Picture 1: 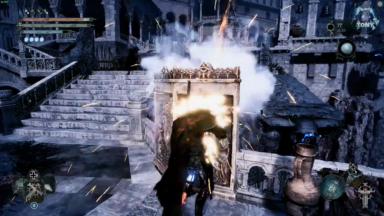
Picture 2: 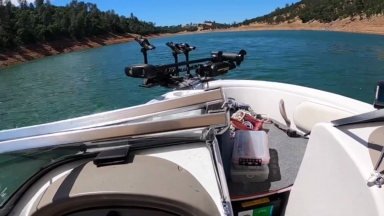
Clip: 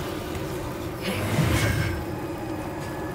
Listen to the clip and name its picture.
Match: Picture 1